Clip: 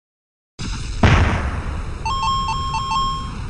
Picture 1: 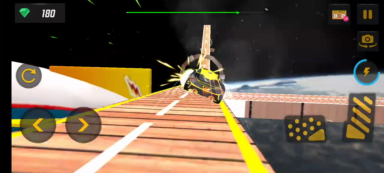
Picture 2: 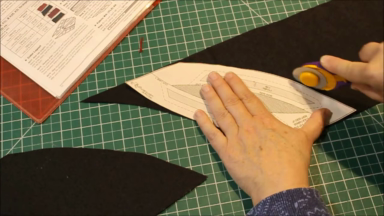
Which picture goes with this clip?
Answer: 1